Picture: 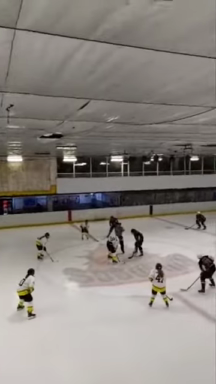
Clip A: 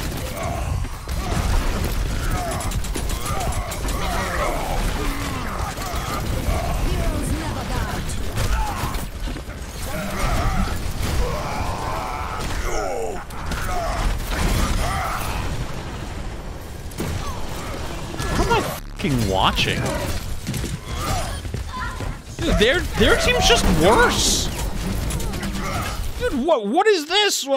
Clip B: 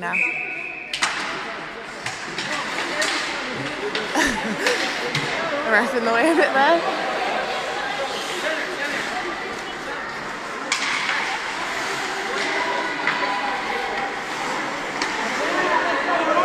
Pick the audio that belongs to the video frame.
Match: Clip B